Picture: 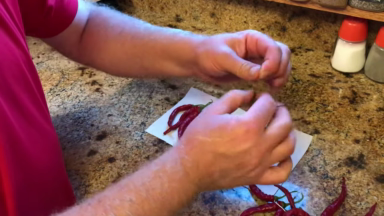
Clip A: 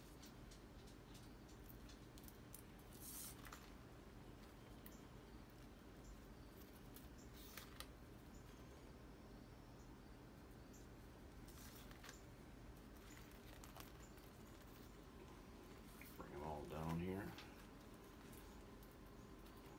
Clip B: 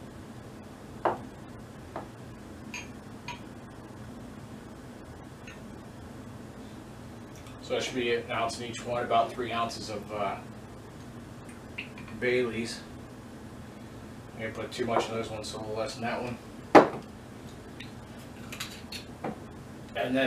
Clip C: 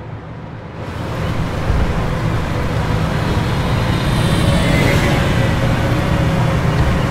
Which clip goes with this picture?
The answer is A